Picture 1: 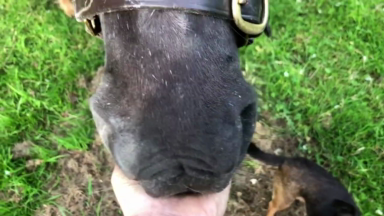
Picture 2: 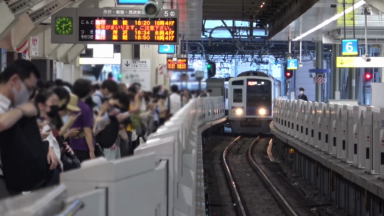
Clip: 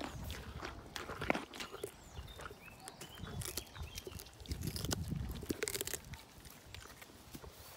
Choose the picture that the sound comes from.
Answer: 1